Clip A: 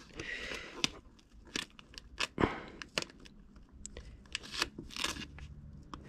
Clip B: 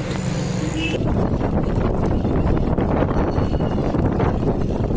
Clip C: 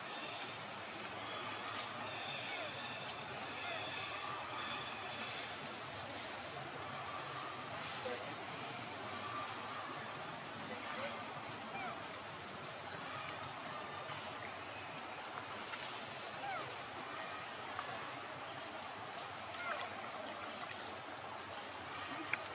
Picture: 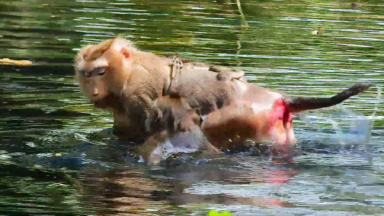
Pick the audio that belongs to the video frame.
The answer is C